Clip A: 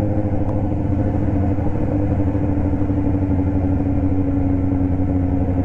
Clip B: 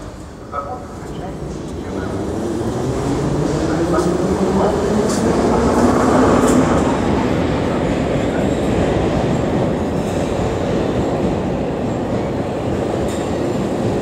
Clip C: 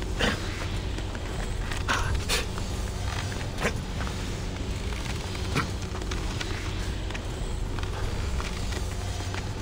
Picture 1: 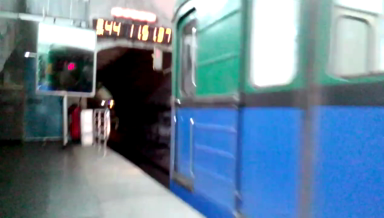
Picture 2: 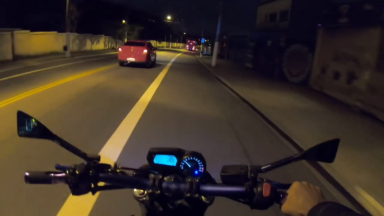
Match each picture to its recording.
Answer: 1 B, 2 A